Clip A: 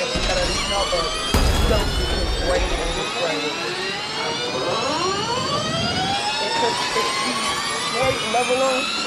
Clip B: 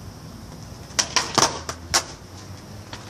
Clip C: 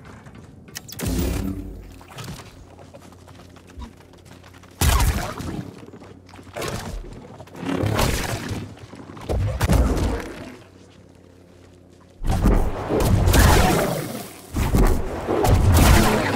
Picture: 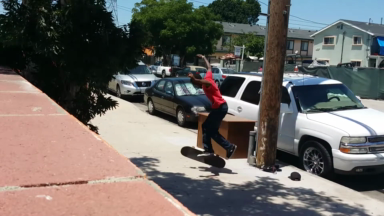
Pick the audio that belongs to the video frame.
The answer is B